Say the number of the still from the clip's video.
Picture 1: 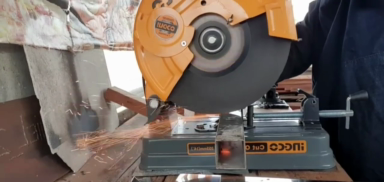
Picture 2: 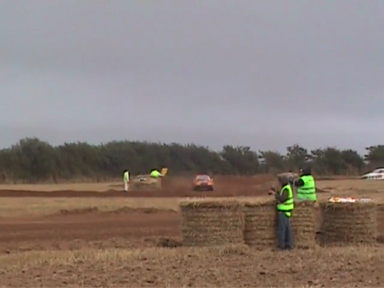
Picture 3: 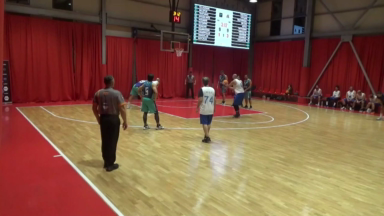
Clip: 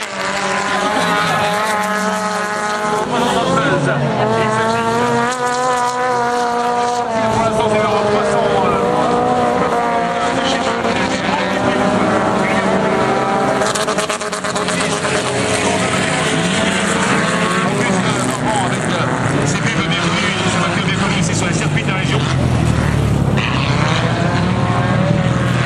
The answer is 2